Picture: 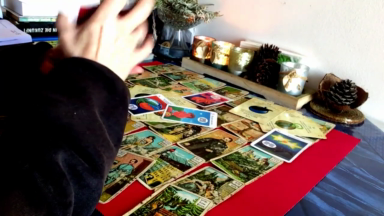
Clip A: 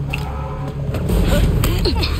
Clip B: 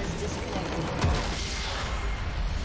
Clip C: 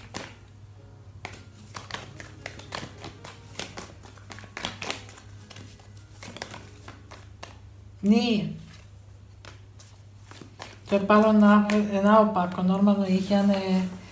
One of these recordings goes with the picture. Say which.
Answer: C